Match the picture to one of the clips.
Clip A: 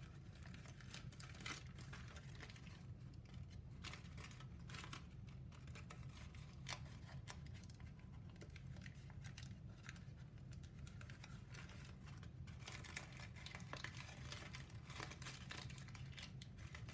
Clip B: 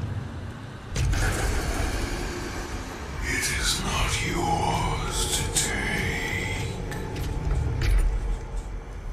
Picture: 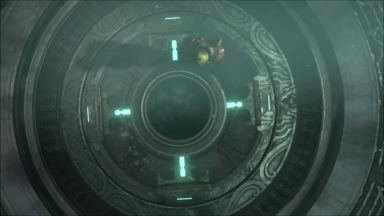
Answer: B